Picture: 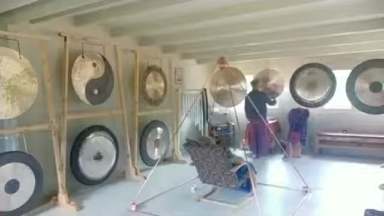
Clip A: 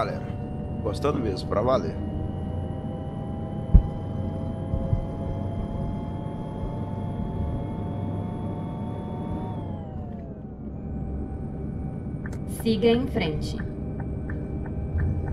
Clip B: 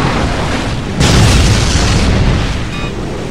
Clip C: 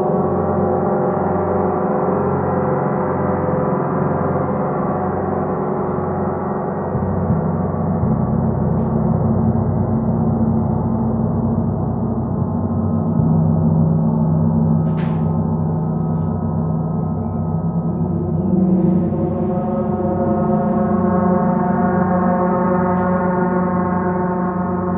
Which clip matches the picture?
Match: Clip C